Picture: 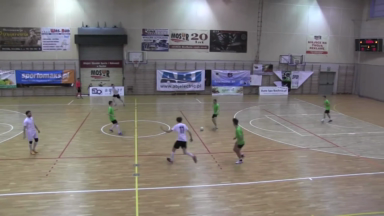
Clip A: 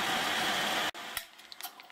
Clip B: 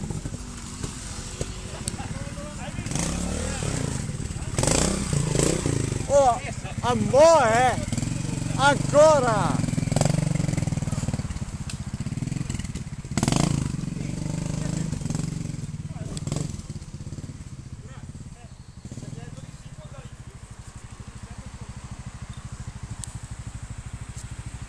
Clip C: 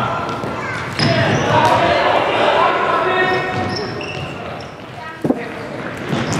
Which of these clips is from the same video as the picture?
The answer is C